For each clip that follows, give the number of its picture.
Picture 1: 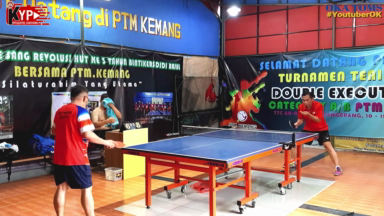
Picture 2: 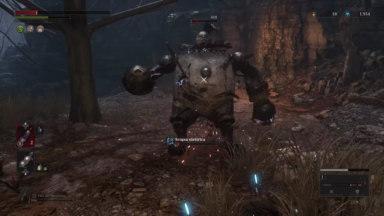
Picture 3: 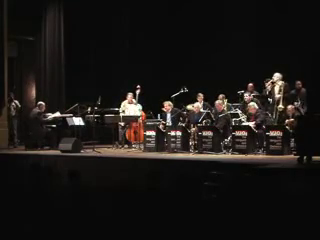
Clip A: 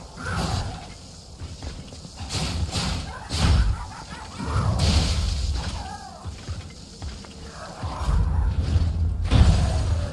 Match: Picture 2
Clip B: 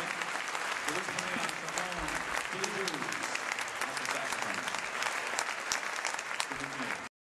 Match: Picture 3